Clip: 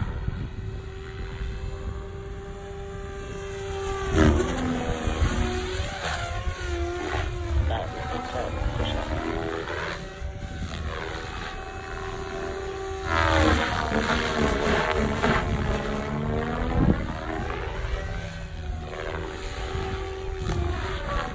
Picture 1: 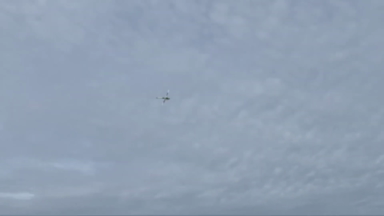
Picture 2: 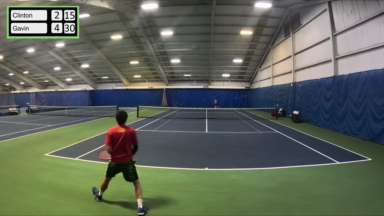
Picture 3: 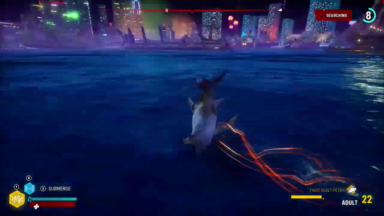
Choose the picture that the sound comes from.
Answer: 1